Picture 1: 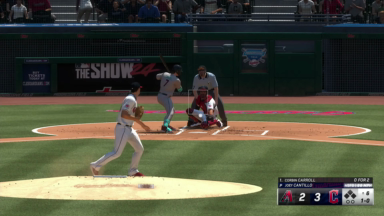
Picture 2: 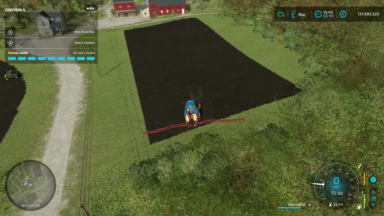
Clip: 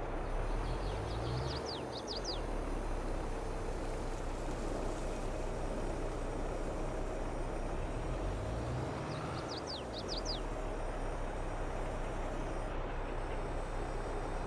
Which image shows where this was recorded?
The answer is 2